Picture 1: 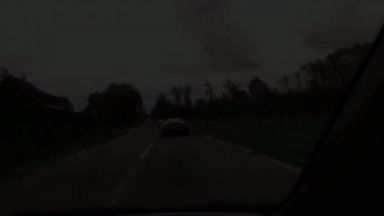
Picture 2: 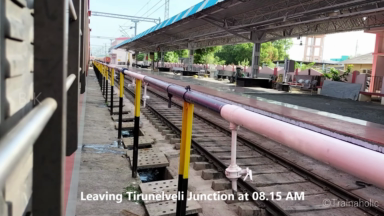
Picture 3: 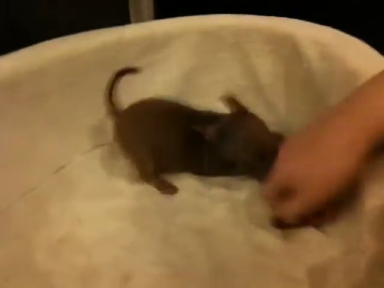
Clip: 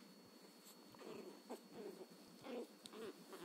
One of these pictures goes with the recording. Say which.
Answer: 3